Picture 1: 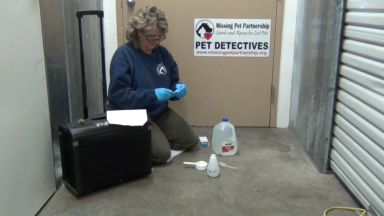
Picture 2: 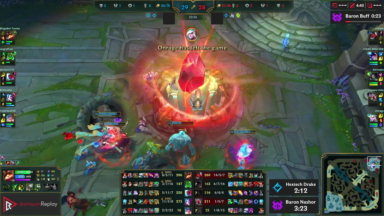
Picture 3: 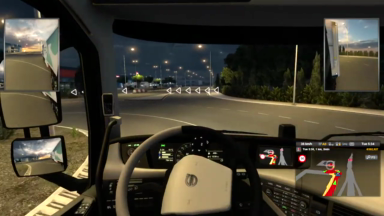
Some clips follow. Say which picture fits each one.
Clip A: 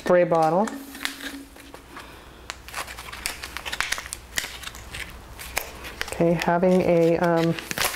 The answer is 1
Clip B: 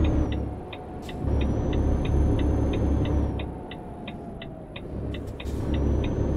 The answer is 3